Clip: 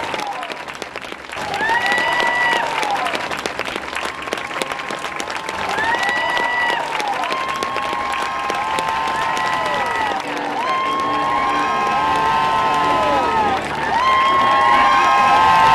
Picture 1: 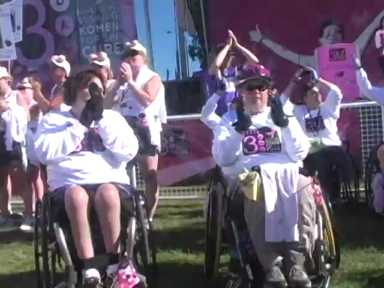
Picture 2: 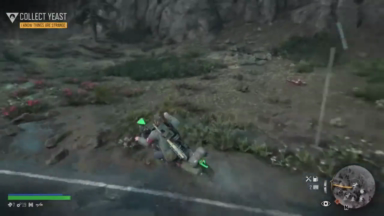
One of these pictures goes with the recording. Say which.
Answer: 1